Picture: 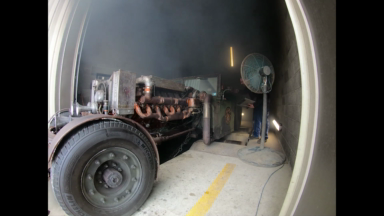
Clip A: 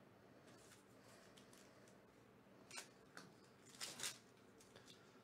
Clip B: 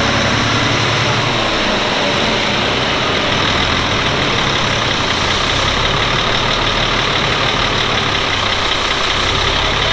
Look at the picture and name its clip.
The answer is B